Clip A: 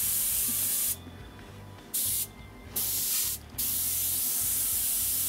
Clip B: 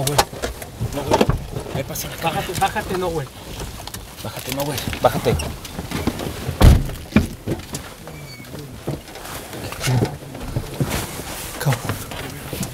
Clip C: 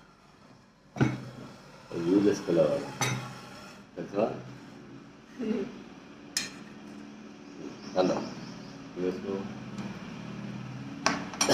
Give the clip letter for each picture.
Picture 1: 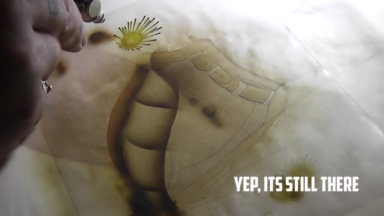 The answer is A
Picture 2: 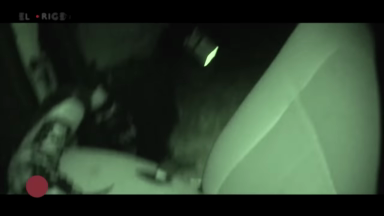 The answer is B